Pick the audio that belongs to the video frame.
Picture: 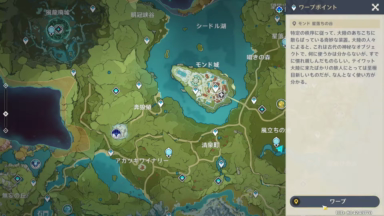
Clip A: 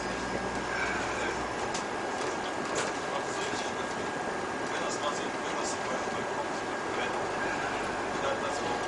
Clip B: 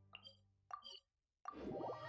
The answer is B